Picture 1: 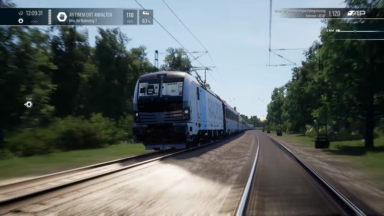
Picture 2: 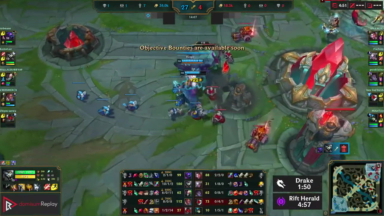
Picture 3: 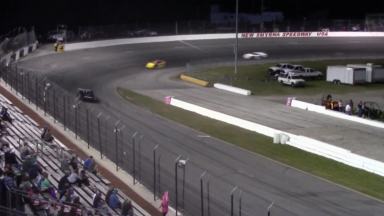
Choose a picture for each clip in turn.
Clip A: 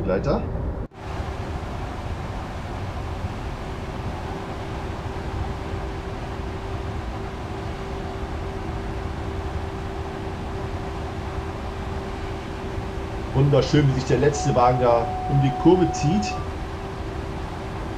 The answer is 1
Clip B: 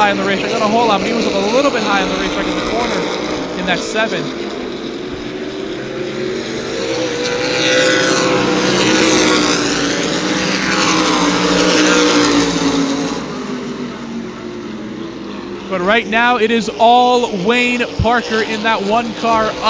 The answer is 3